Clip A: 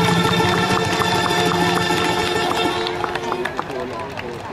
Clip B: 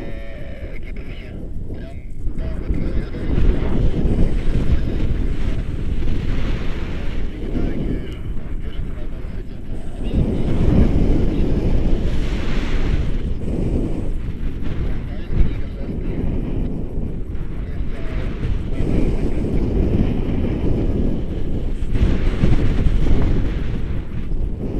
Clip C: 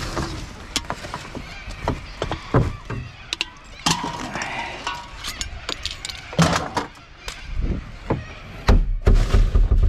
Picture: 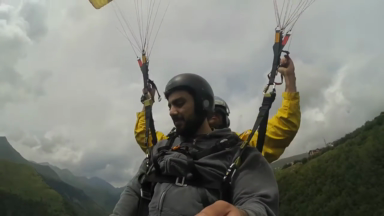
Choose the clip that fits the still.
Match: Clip B